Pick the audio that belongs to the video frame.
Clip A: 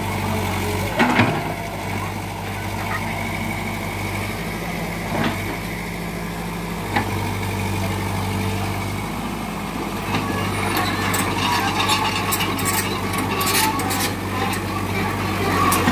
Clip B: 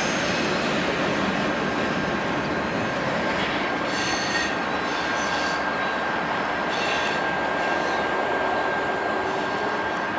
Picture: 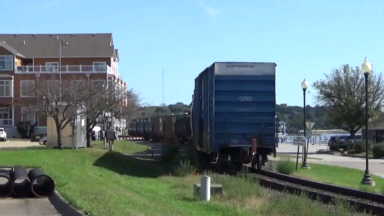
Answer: B